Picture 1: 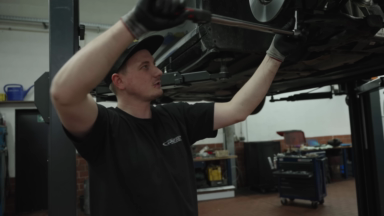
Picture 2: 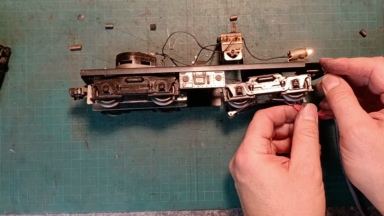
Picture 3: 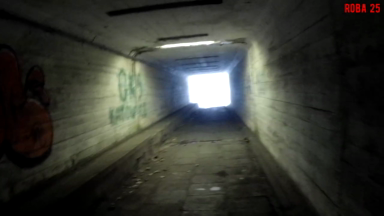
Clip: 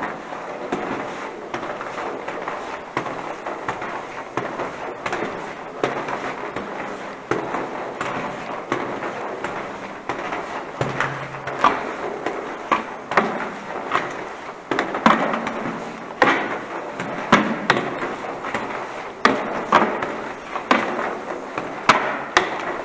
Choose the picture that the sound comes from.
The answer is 3